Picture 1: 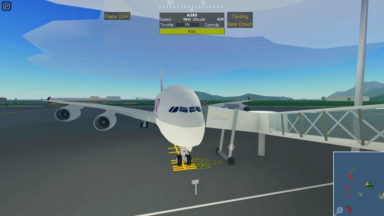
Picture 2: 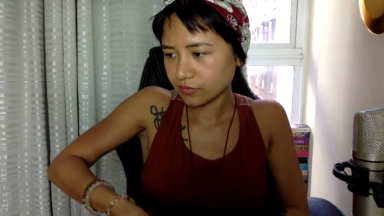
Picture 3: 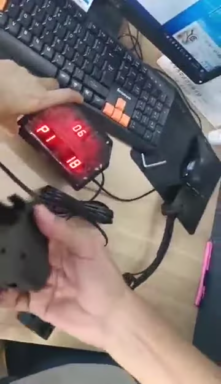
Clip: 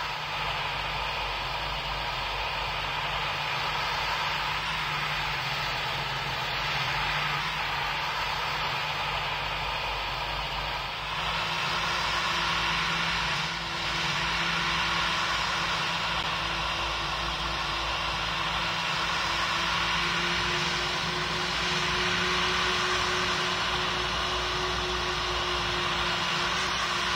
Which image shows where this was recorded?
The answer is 1